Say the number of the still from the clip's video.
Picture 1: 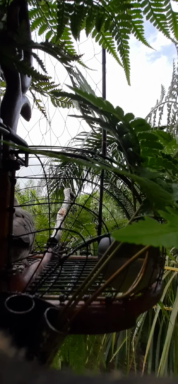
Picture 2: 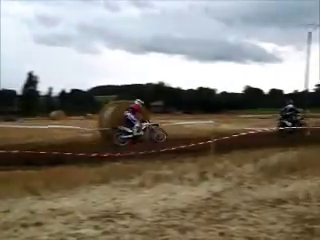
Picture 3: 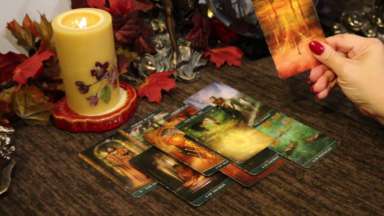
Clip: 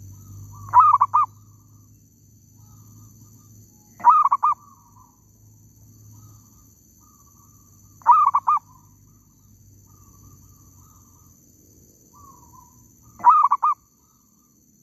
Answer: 1